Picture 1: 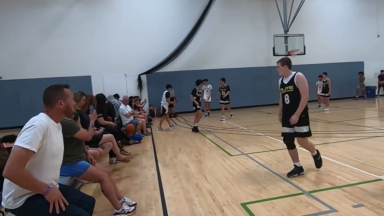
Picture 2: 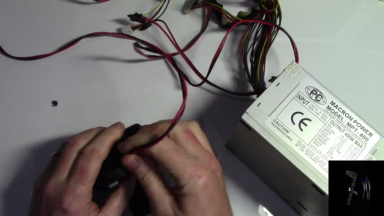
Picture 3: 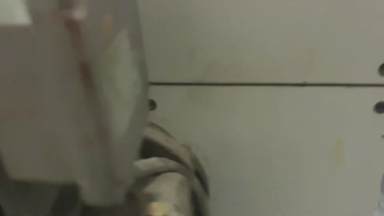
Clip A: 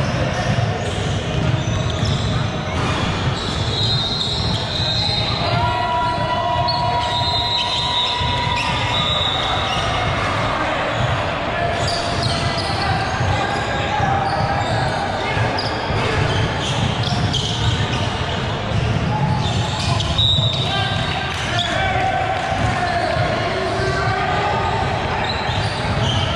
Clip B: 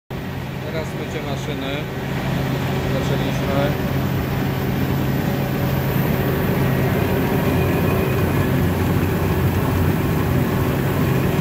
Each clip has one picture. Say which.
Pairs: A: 1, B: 3